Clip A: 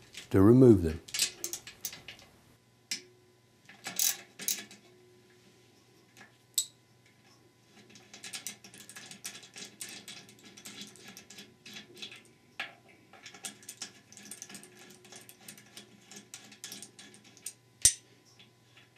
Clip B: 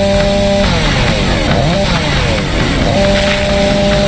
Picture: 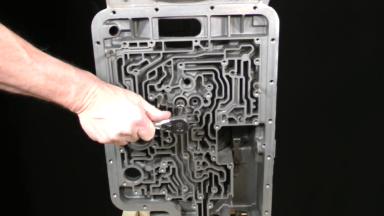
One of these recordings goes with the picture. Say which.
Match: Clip A